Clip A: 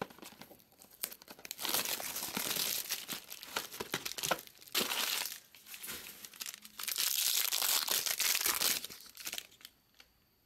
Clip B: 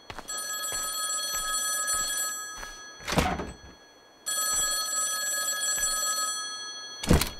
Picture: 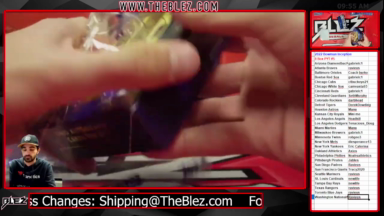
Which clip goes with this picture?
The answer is A